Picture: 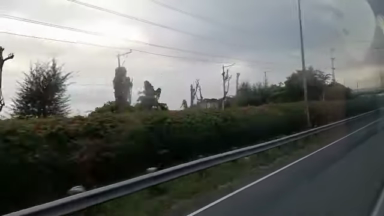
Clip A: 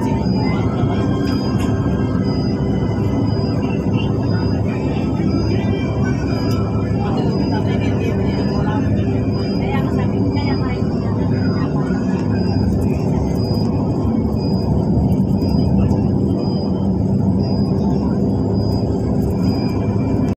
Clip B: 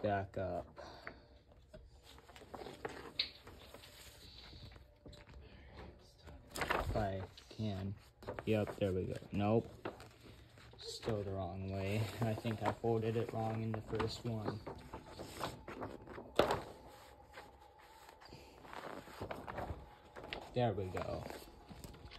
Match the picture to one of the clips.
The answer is A